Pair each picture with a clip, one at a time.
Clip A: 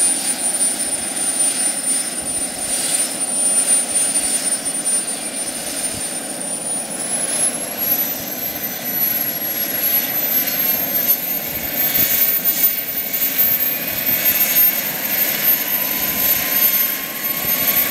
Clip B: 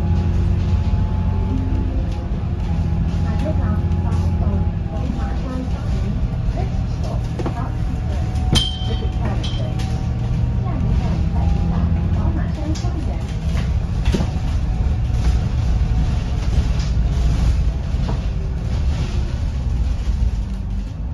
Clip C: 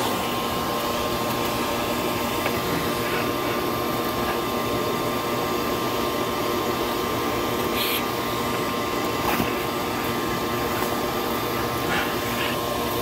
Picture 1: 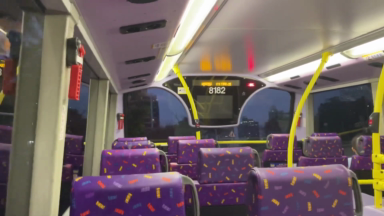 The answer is B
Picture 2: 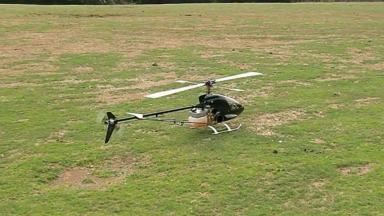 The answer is A